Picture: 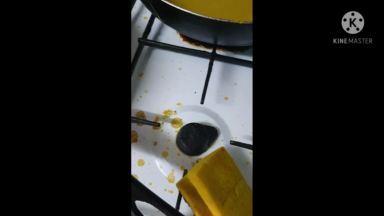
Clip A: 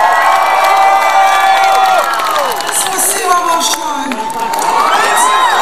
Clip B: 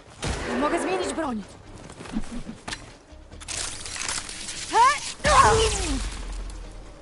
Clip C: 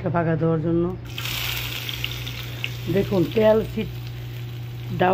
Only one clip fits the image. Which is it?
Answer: C